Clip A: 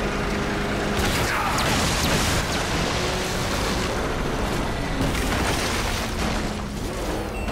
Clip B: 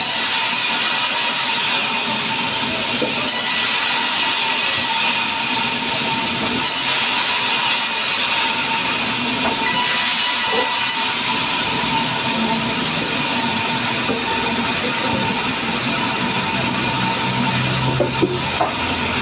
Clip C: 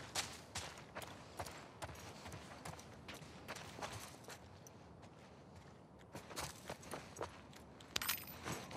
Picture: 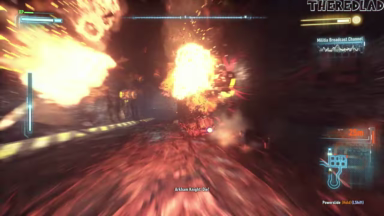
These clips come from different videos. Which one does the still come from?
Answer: A